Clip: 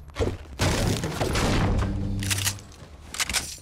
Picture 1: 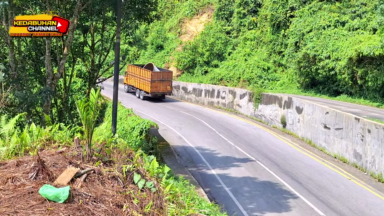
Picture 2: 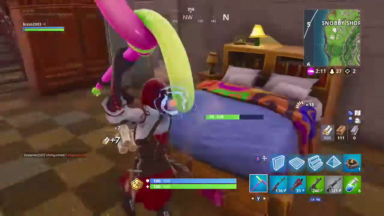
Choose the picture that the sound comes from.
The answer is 2